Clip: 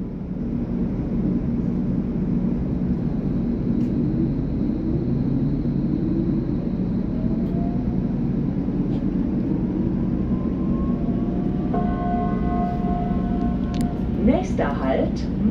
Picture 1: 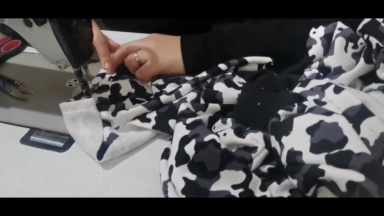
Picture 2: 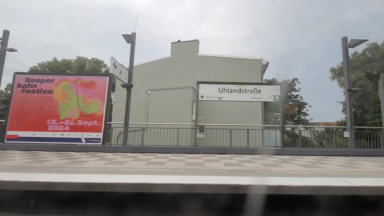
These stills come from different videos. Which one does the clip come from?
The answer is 2